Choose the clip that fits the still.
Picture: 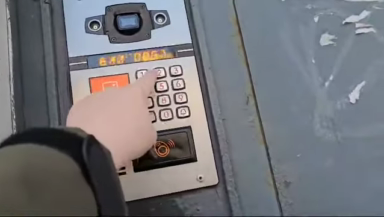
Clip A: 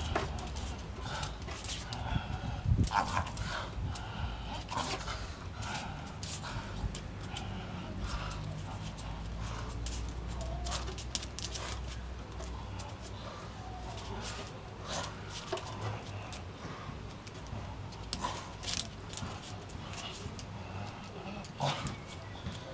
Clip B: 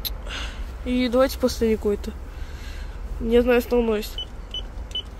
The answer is B